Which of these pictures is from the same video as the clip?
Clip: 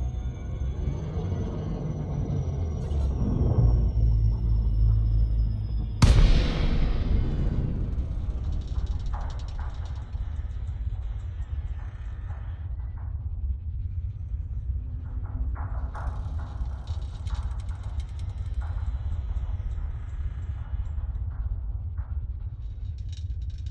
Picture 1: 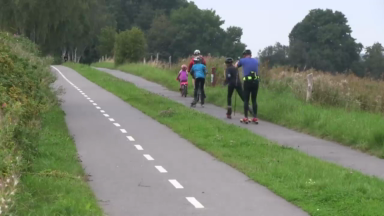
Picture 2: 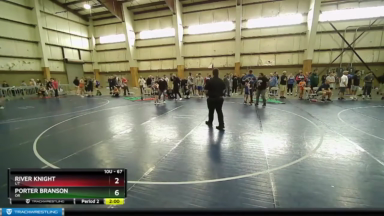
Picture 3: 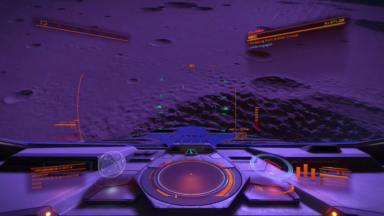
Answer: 3